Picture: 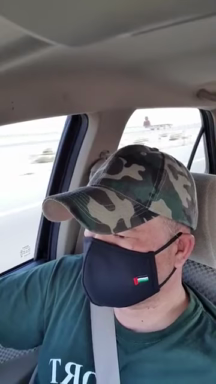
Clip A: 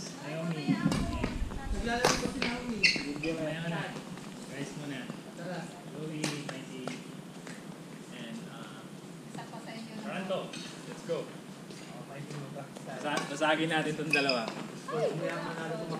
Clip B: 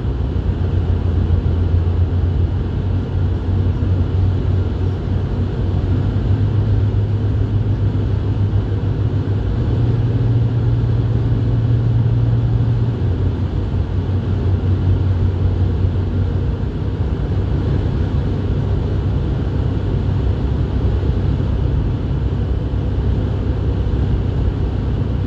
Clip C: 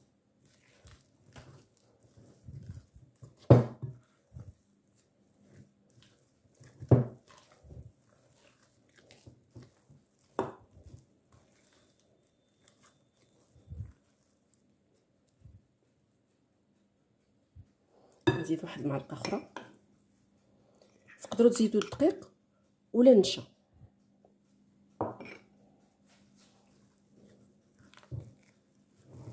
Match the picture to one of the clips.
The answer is B